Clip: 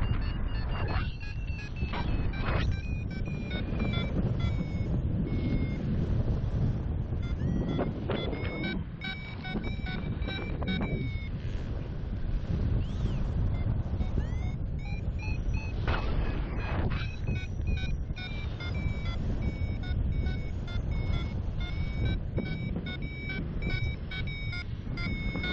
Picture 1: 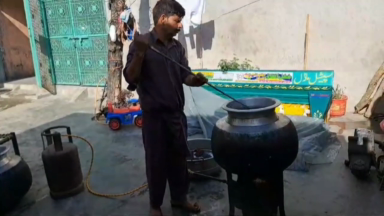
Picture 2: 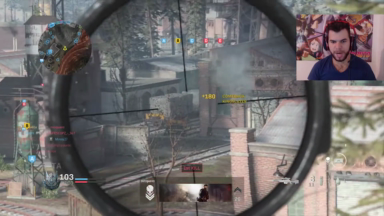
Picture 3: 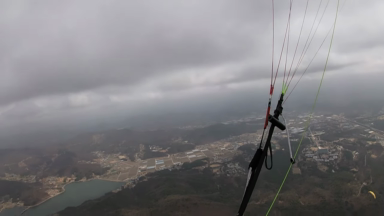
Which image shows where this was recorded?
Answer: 3